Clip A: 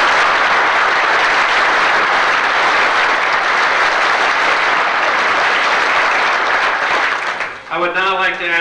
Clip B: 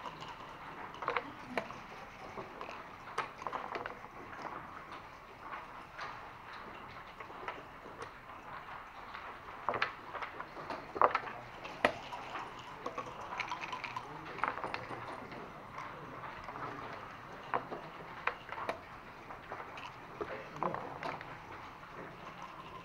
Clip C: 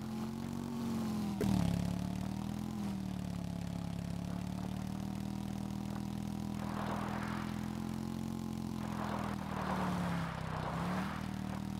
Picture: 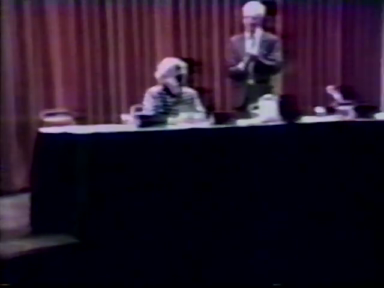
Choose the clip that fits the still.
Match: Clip A